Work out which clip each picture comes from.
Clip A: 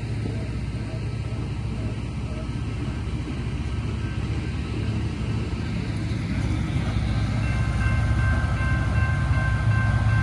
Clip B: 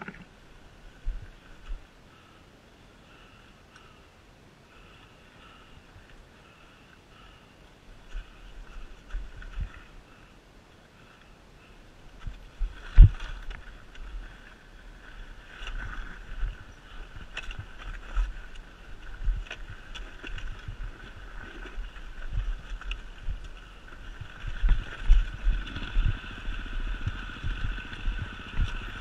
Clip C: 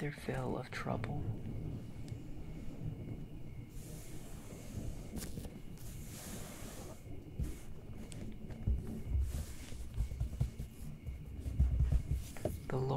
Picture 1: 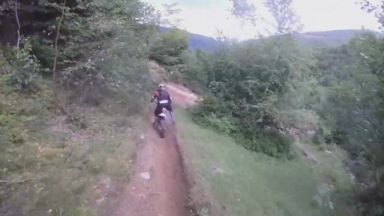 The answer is B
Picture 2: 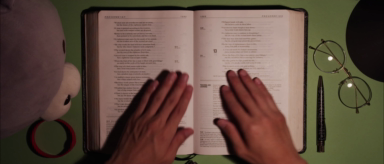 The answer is C